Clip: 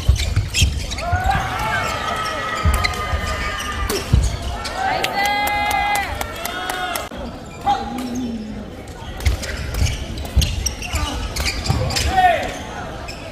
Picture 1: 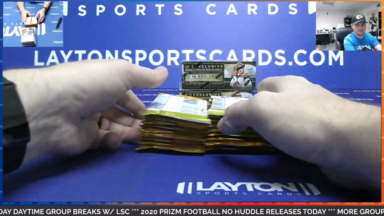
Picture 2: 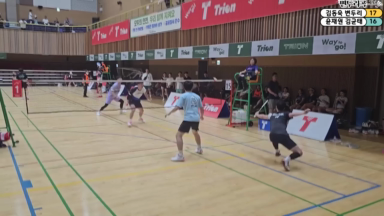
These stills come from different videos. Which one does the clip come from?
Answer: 2